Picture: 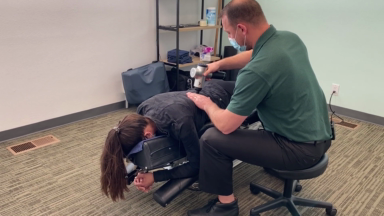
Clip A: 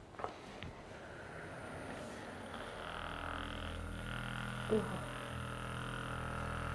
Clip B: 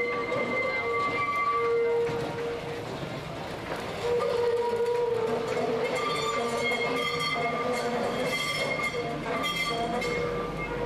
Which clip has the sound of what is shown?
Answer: A